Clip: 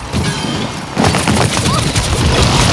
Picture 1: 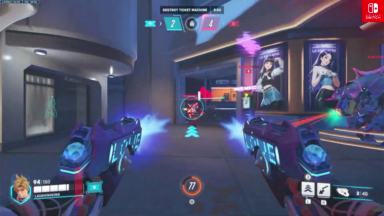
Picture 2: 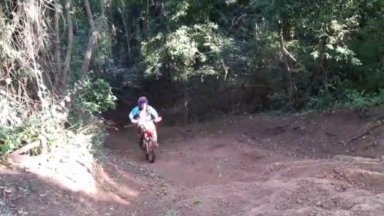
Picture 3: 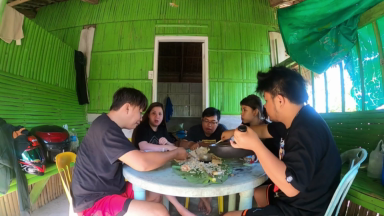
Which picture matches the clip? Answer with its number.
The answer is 1